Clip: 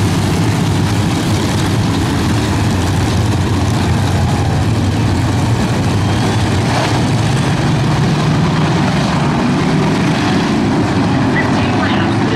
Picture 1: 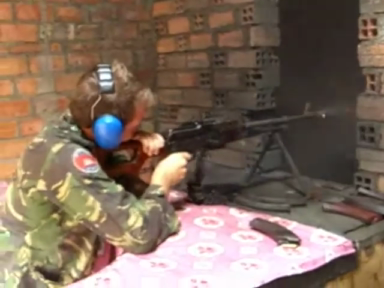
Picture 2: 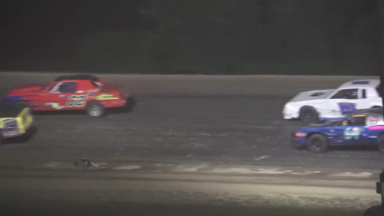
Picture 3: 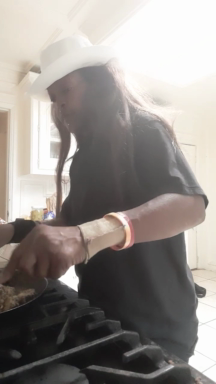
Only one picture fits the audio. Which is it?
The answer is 2